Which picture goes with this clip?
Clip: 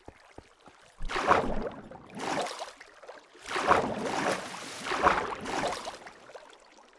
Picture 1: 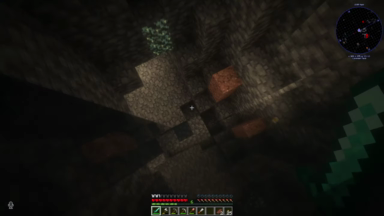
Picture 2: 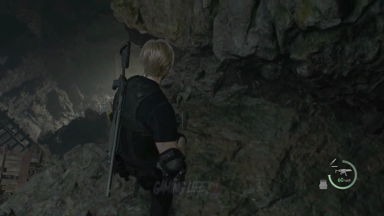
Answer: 1